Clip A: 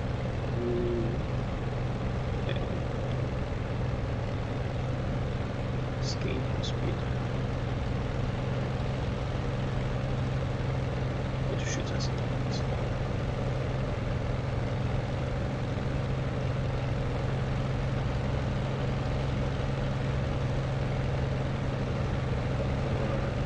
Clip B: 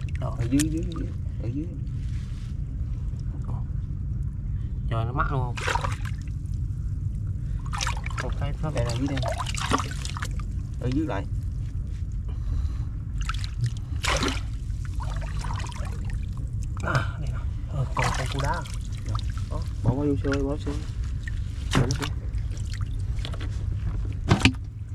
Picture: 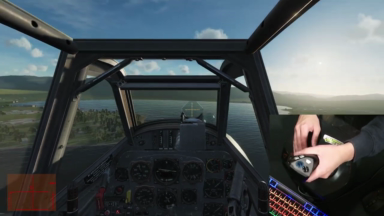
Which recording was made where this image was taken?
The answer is A